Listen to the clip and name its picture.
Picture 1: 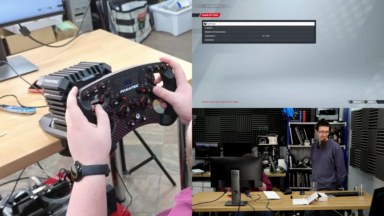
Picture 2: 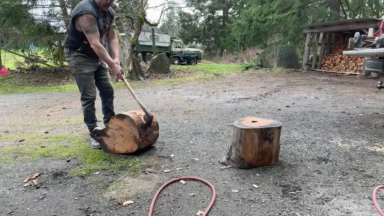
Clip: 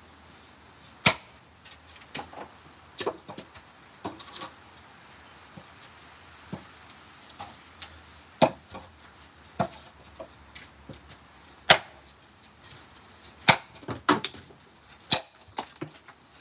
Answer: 2